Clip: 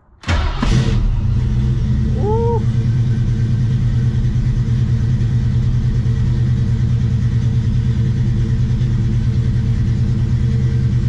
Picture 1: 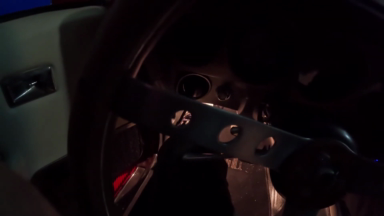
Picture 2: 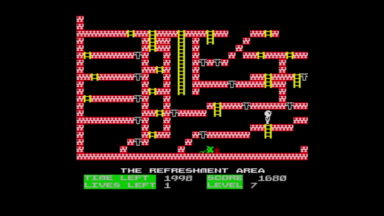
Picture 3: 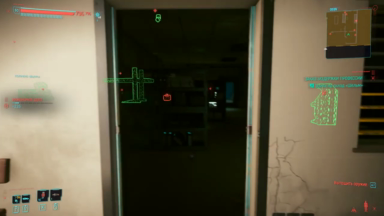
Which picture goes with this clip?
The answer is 1